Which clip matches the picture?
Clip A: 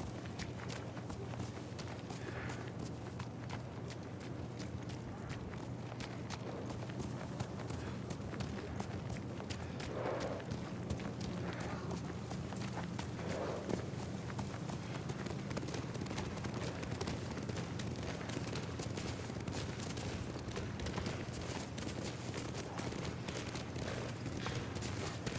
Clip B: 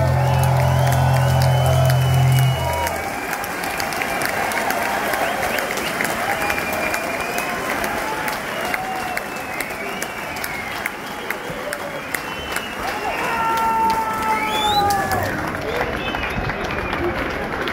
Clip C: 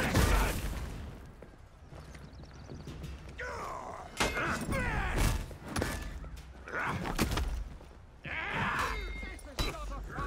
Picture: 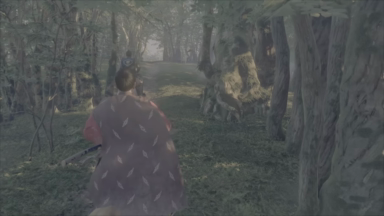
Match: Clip A